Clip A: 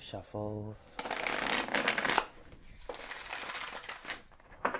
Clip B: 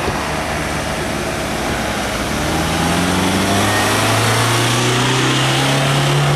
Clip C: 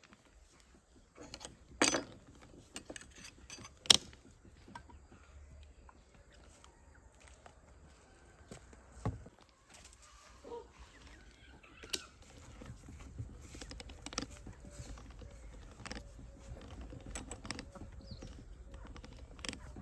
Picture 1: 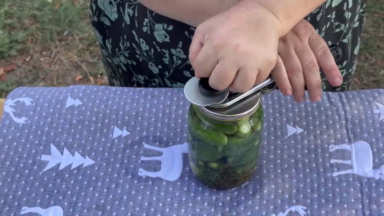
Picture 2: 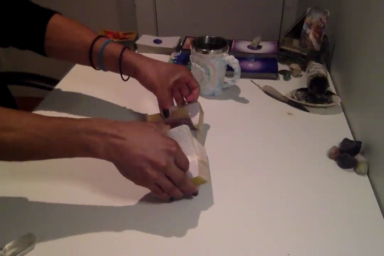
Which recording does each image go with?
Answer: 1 C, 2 A